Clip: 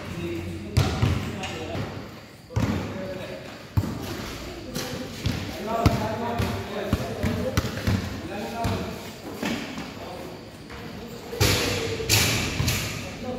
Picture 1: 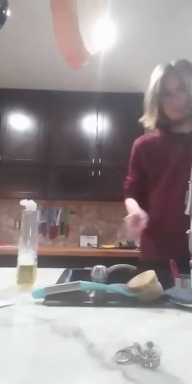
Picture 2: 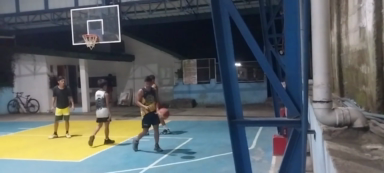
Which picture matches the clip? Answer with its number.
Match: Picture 2